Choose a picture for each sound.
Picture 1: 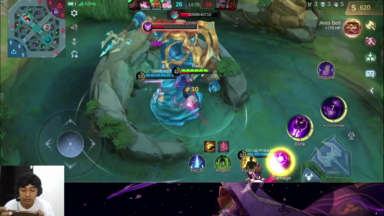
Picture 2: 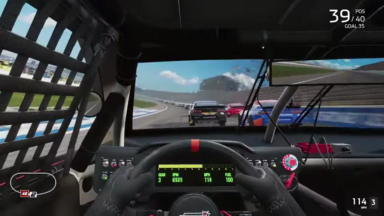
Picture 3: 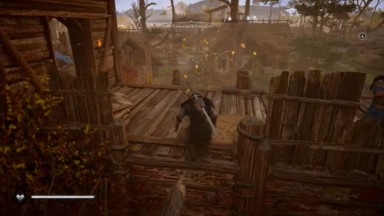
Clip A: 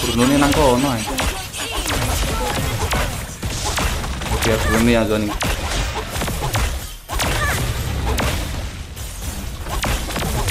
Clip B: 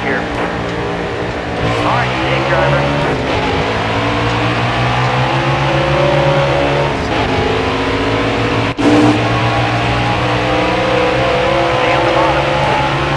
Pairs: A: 1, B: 2